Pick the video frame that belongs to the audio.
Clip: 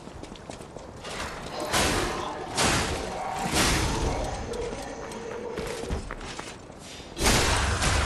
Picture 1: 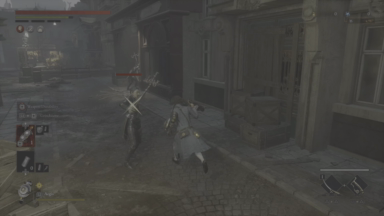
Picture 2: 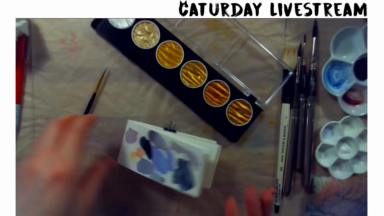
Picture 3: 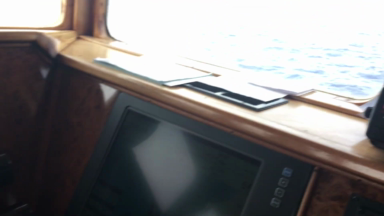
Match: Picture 1